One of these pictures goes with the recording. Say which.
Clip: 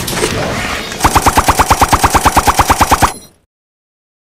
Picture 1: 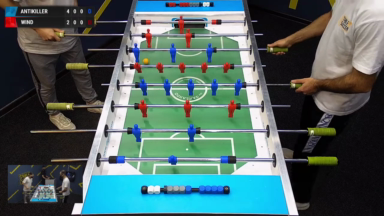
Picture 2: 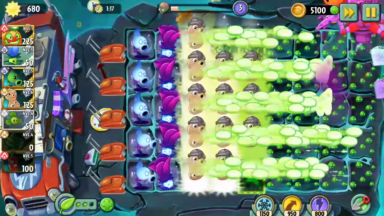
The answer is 2